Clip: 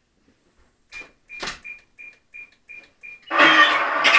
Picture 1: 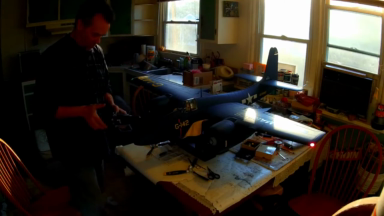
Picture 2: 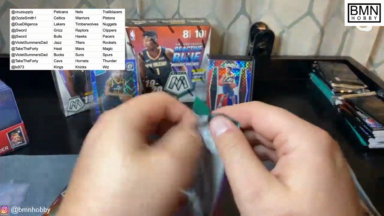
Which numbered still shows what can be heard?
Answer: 1